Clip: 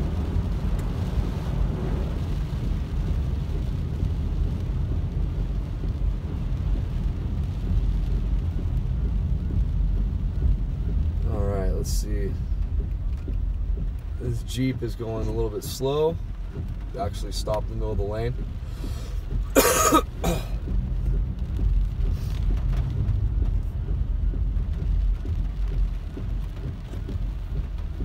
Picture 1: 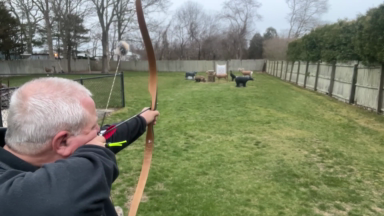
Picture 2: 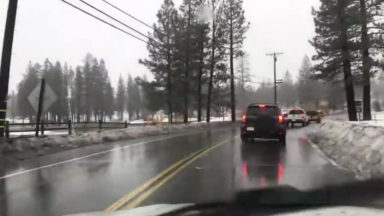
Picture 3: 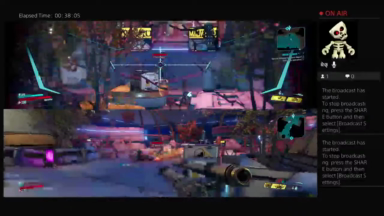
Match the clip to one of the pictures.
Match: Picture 2